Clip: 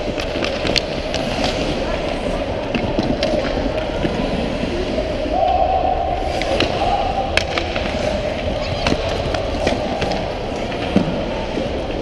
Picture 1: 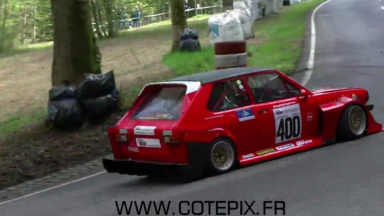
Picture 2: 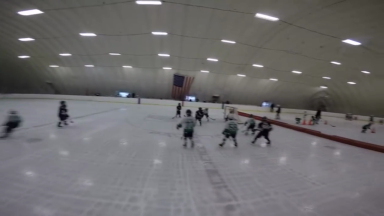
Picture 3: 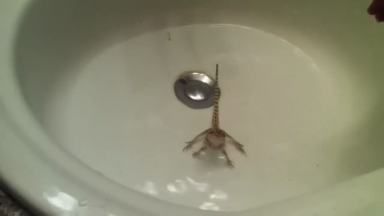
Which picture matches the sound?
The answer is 2